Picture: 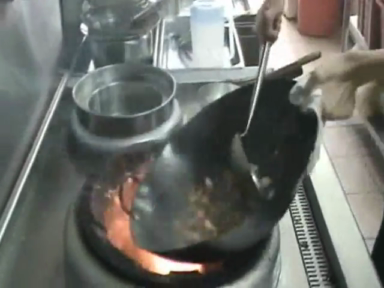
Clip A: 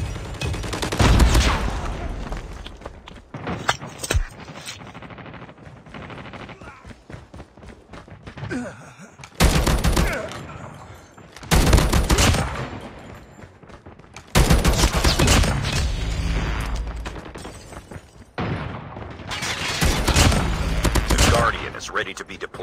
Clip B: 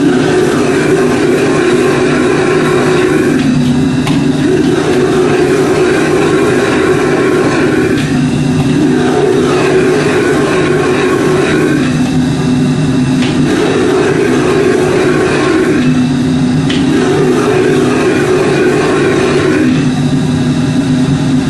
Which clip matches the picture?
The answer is B